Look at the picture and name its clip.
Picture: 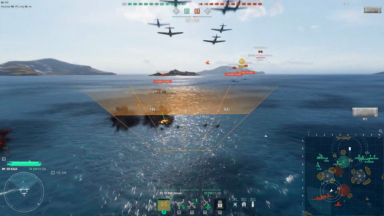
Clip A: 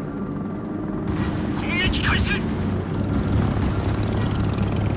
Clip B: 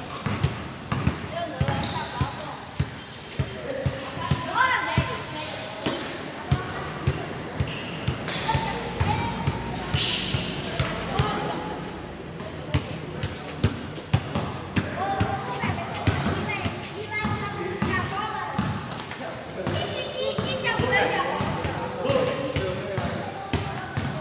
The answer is A